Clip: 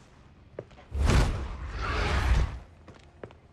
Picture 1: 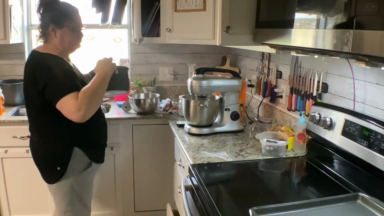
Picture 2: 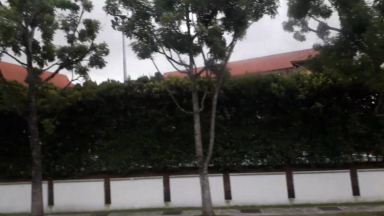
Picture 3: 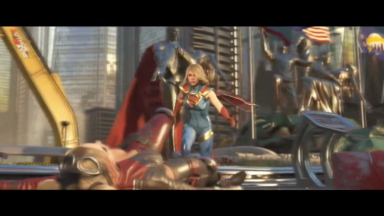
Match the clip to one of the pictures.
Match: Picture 3